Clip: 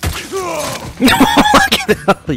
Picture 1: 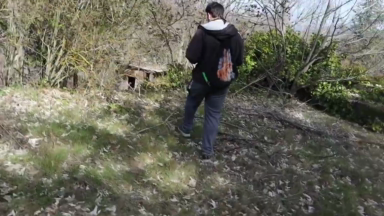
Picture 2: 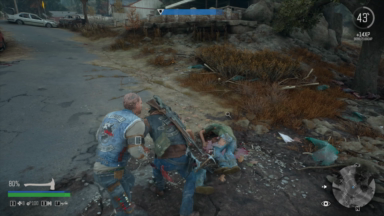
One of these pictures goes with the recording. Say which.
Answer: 2